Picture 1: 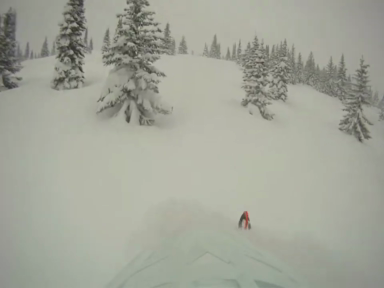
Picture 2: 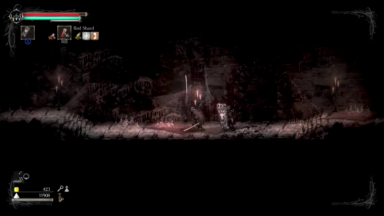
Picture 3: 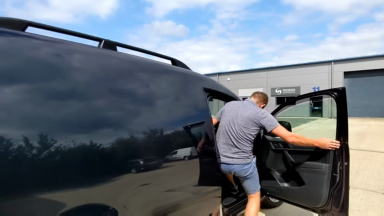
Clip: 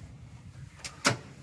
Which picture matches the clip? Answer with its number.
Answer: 3